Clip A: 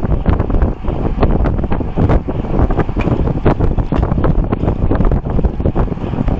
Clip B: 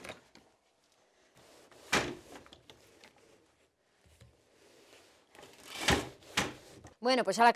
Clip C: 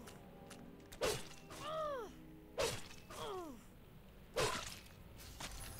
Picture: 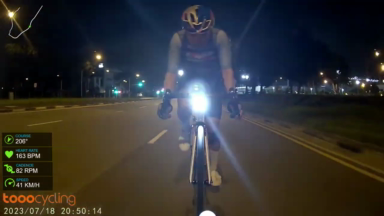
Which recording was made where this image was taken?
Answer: A